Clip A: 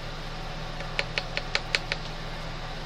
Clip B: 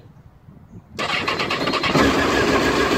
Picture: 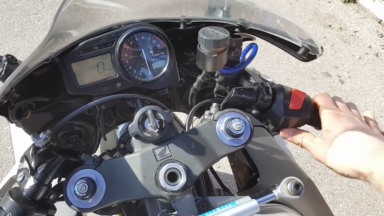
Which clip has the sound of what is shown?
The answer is B